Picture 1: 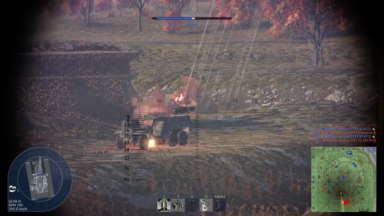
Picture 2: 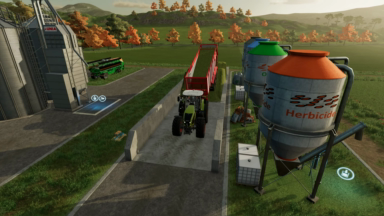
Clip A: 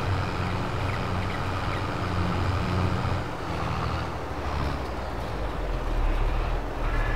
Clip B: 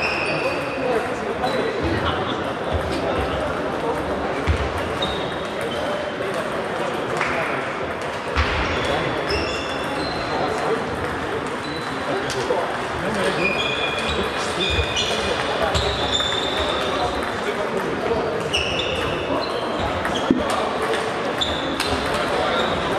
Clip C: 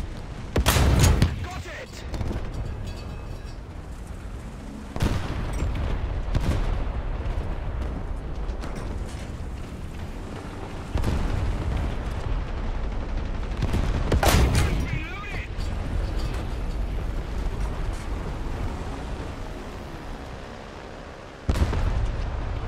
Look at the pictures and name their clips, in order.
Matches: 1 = C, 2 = A